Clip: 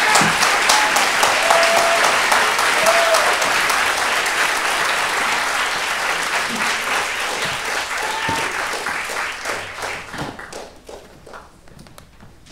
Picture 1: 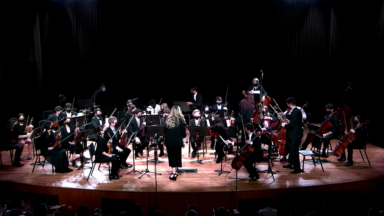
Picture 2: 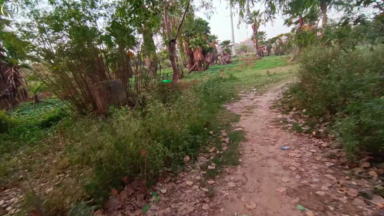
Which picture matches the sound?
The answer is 1